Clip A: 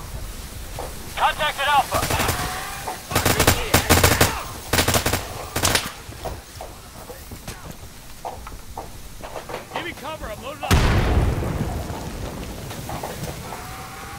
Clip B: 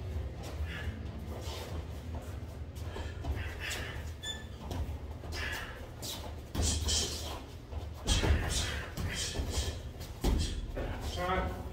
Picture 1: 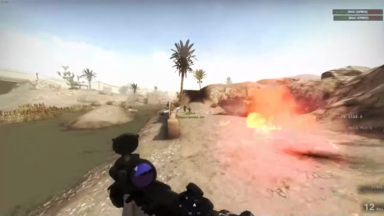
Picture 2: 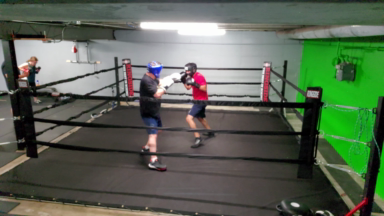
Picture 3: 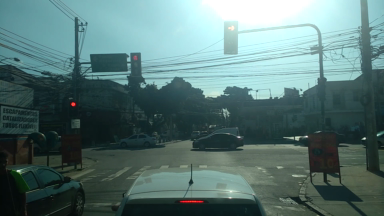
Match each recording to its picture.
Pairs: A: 1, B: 2